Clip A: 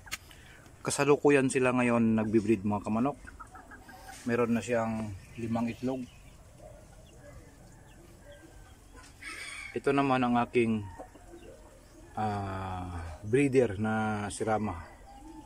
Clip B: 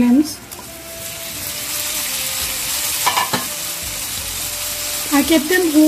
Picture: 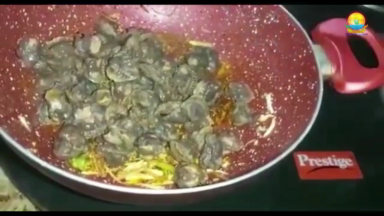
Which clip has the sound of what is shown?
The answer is B